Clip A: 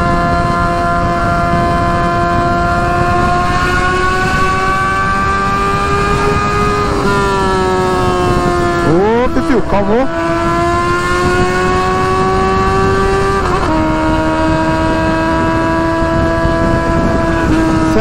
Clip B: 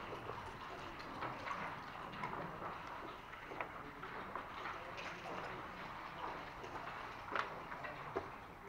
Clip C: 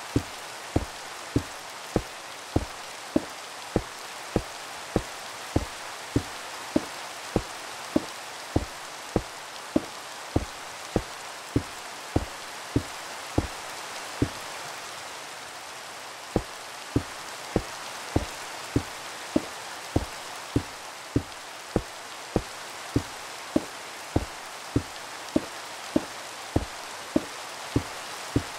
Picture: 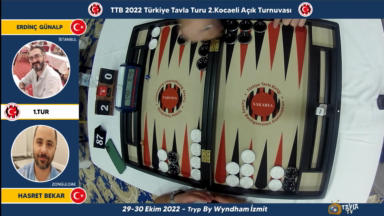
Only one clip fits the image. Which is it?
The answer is B